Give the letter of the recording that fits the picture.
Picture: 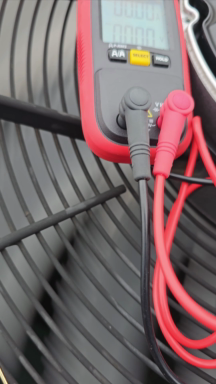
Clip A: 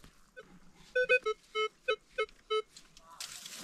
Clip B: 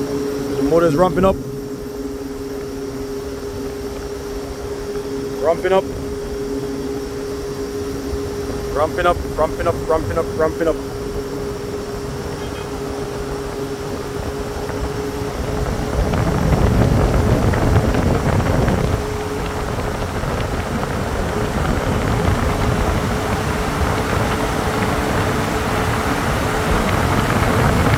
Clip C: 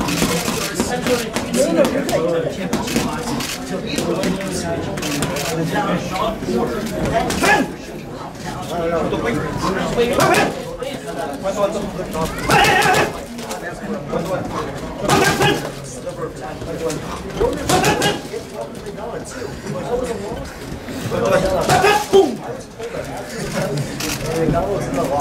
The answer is B